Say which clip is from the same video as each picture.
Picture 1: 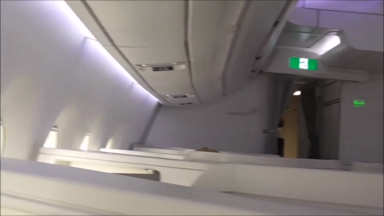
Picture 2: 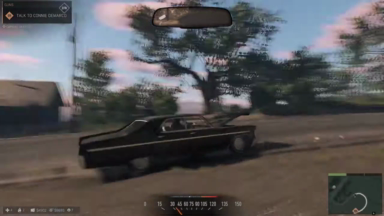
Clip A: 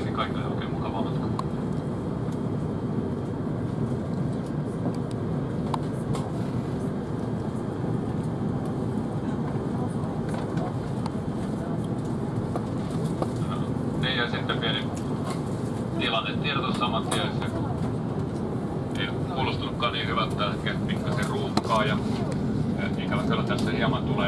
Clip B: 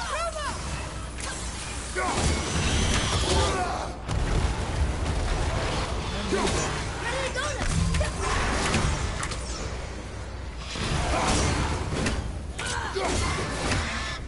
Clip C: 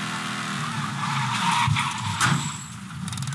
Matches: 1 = A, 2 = C